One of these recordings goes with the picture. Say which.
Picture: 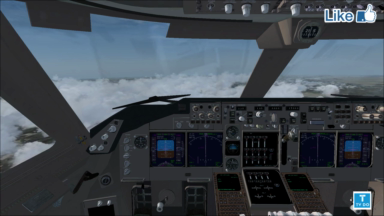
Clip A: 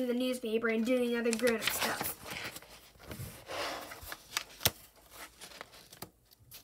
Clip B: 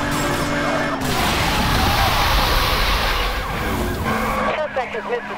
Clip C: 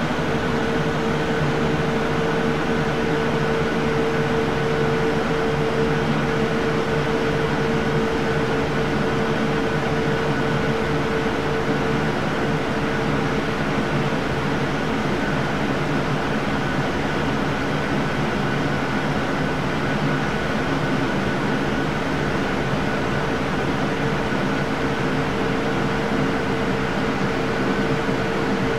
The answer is C